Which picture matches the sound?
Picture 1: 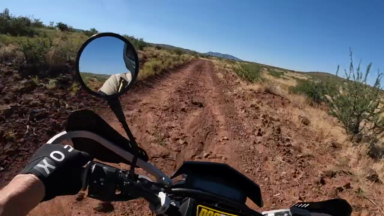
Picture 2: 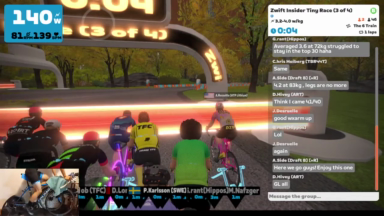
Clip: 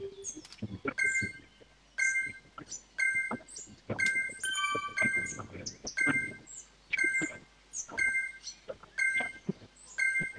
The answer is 2